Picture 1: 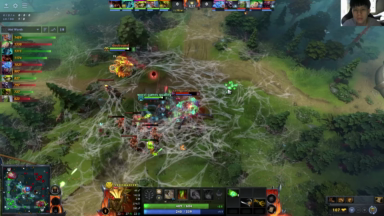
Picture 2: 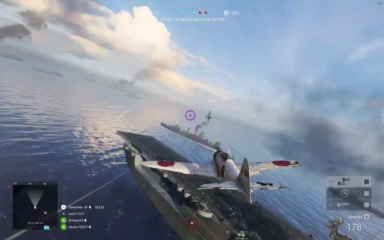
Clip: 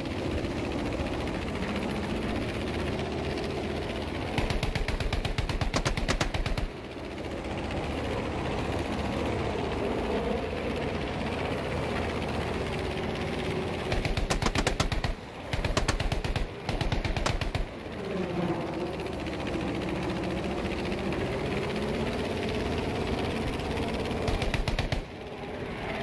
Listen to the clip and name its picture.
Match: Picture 2